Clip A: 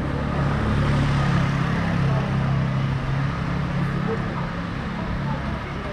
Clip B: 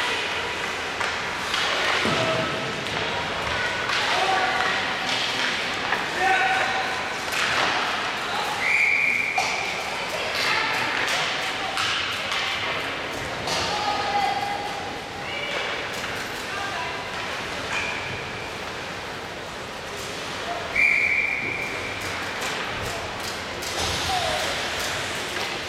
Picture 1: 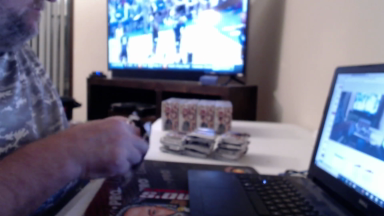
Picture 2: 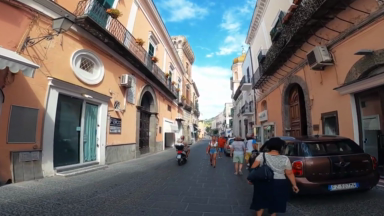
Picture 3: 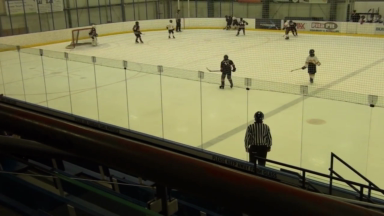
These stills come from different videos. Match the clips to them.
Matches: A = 2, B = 3